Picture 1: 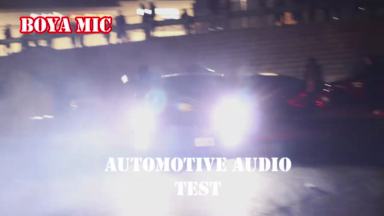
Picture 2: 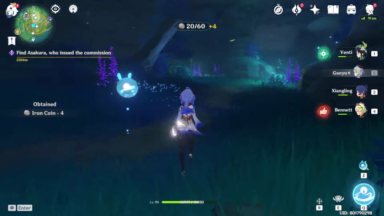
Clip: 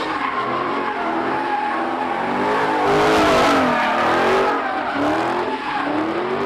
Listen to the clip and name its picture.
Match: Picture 1